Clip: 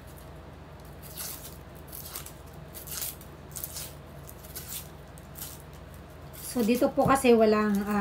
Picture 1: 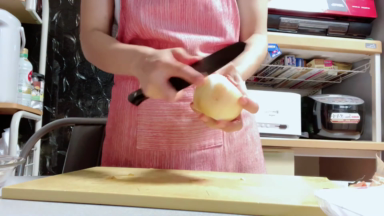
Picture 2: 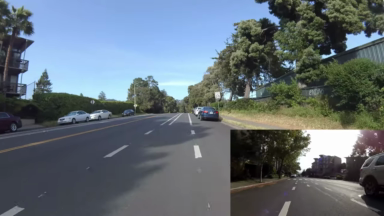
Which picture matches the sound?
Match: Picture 1